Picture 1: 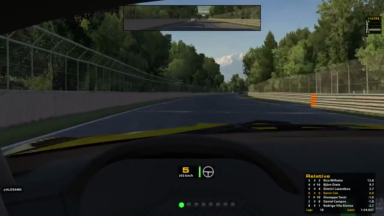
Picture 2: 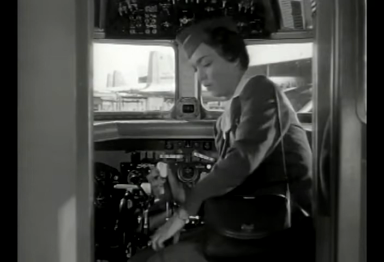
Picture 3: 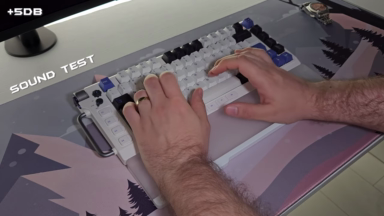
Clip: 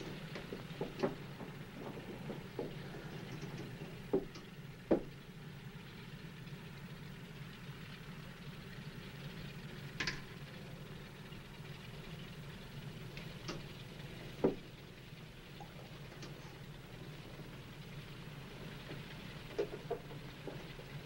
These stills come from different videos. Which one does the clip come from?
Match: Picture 2